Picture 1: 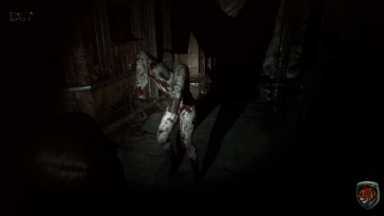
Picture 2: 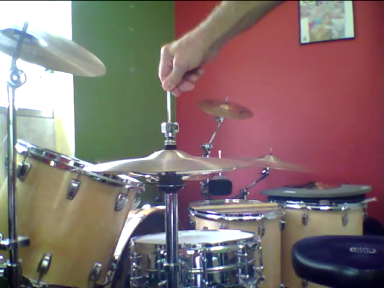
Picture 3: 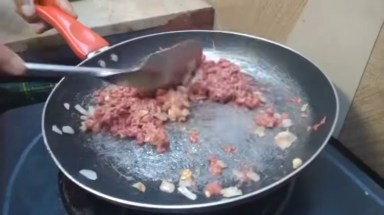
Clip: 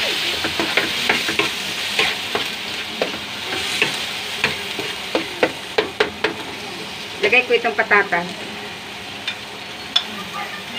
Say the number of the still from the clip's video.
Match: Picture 3